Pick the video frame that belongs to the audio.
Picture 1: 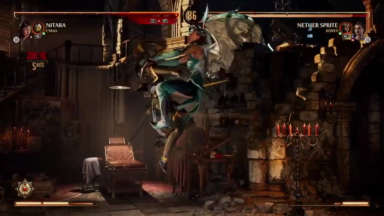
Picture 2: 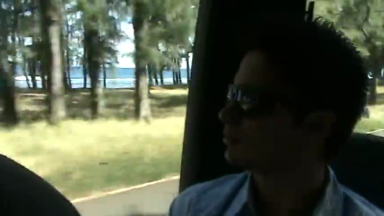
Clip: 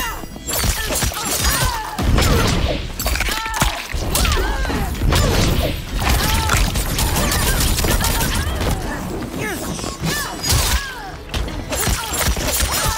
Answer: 1